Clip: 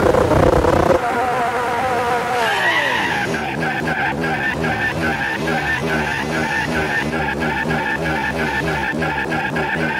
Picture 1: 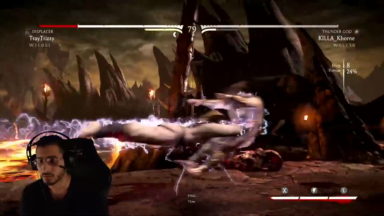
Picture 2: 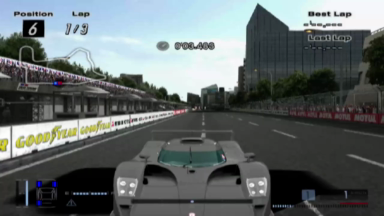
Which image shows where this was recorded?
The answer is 2